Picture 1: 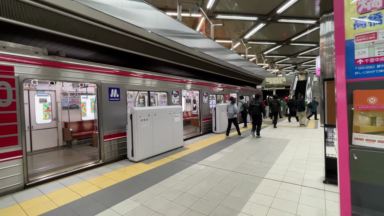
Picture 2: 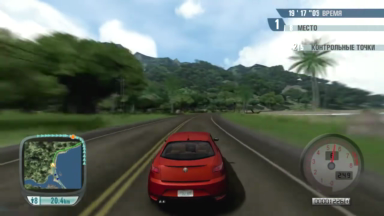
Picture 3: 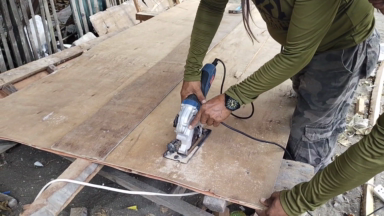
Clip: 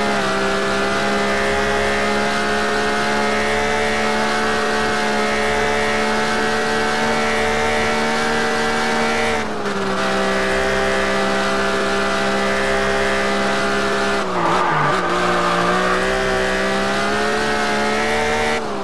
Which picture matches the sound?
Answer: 2